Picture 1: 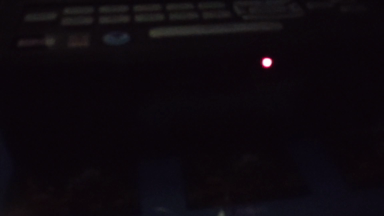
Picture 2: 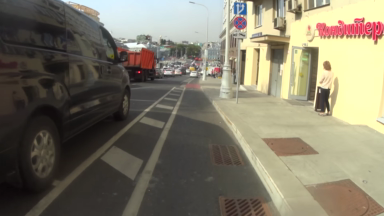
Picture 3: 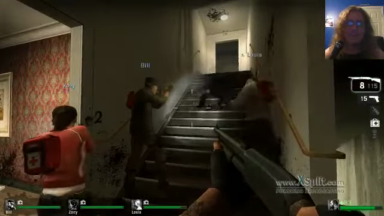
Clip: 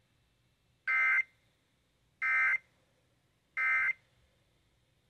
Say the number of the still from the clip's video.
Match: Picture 1